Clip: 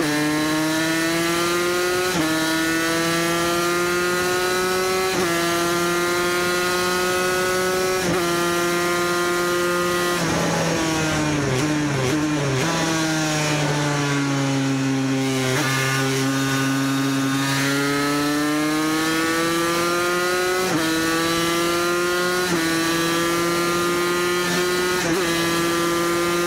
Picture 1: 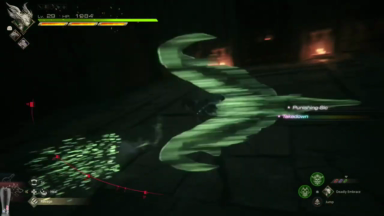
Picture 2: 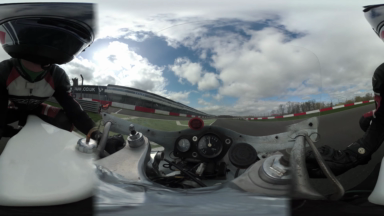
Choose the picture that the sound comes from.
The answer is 2